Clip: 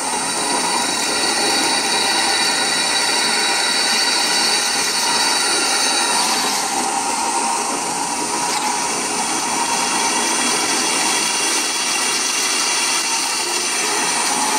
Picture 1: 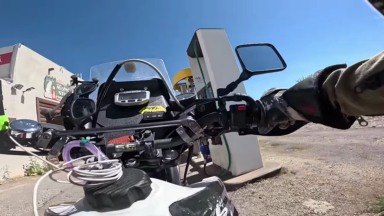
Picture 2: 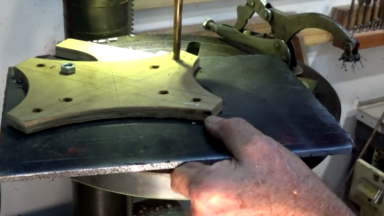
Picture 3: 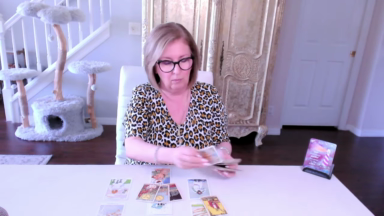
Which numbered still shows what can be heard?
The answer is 2